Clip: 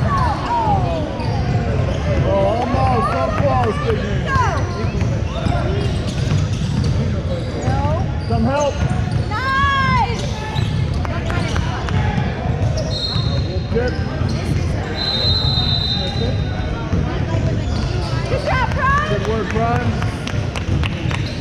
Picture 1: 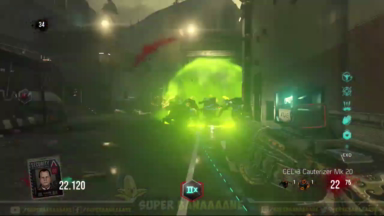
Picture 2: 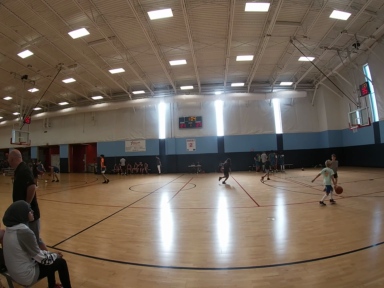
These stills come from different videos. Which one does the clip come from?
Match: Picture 2